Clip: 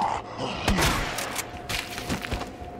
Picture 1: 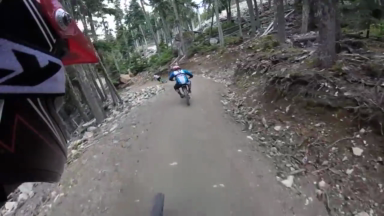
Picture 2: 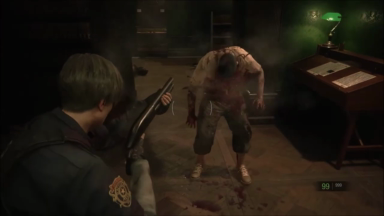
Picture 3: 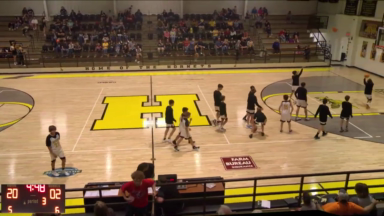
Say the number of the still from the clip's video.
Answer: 2